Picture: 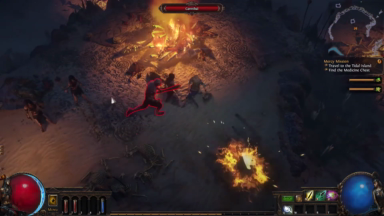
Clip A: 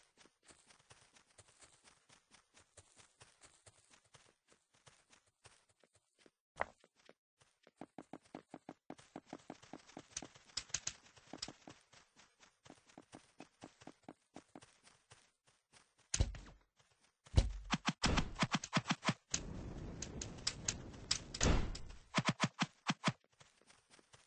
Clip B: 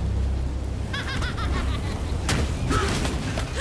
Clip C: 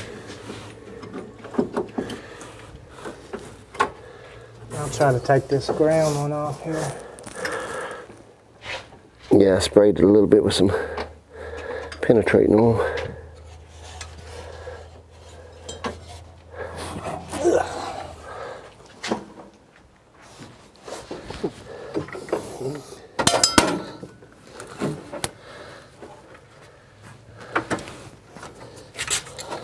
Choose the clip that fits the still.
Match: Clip B